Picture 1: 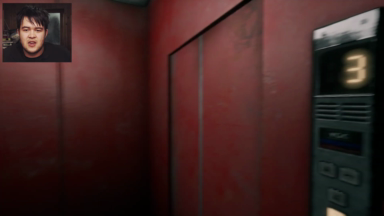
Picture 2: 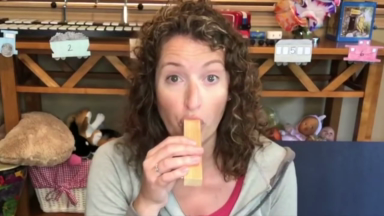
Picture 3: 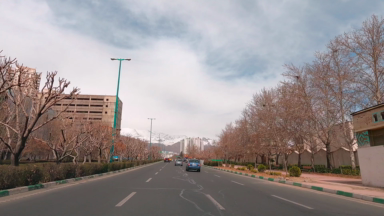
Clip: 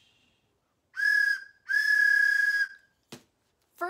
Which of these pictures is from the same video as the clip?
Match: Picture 2